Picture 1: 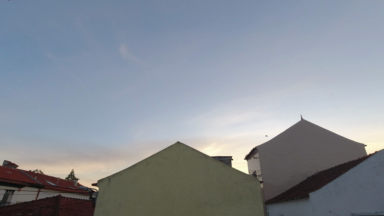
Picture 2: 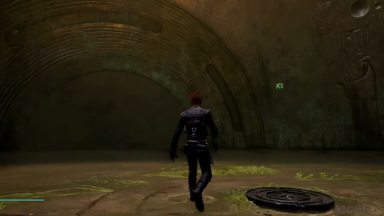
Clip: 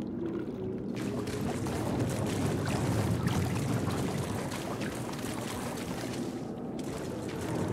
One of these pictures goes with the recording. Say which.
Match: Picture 2